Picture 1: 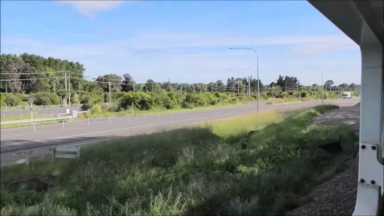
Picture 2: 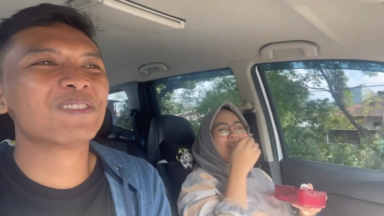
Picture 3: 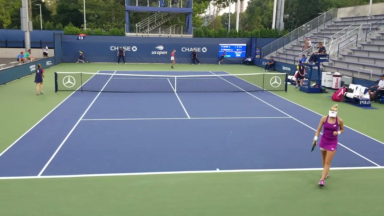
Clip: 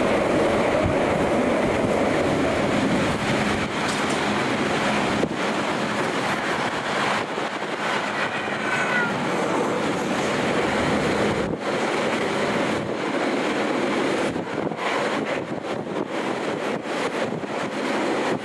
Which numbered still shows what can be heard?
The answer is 1